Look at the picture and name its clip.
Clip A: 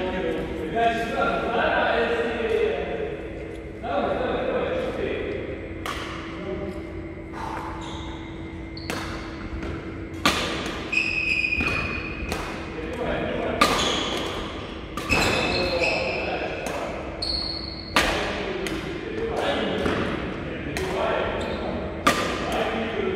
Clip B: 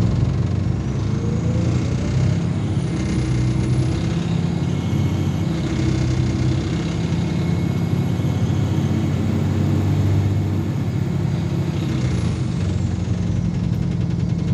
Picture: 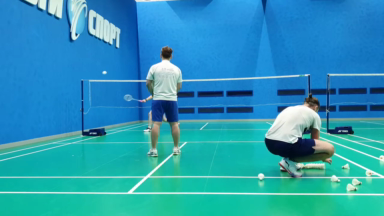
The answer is A